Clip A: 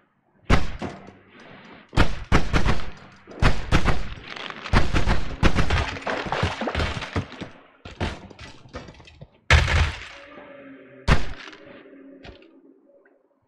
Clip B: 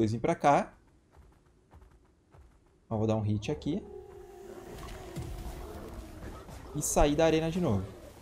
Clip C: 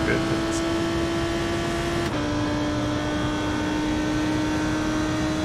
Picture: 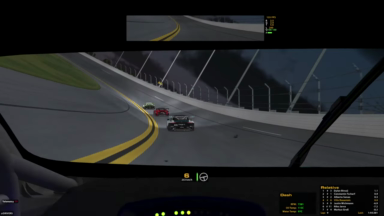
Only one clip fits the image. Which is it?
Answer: C